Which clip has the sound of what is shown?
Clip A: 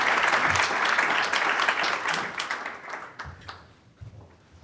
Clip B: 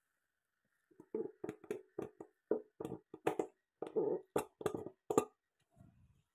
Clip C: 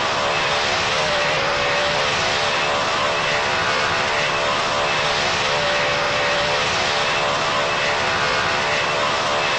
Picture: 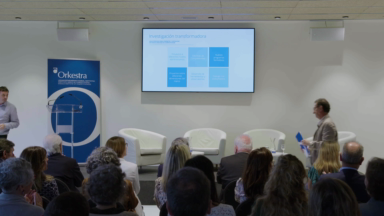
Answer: A